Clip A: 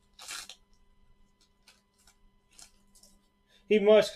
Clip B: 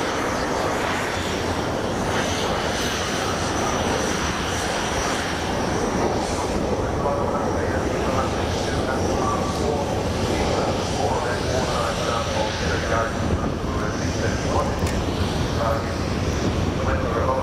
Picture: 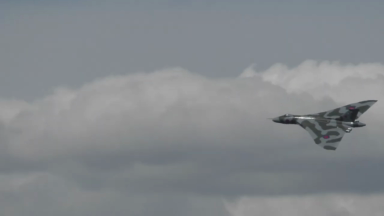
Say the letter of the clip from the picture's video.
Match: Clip B